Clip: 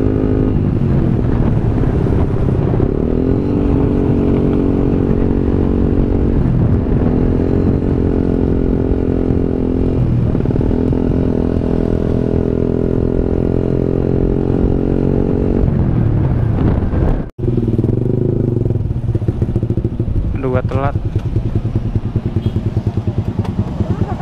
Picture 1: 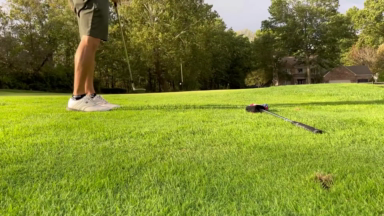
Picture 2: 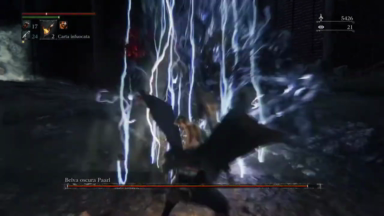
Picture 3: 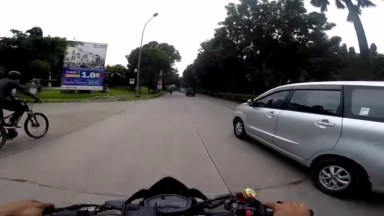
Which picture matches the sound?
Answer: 3